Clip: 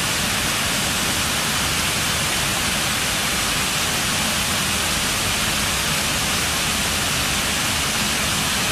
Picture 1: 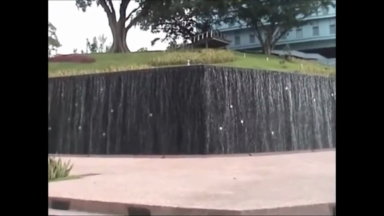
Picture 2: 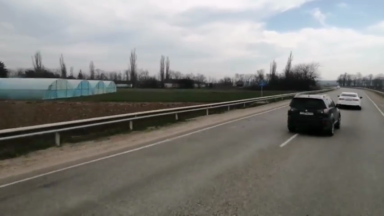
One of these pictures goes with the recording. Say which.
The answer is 1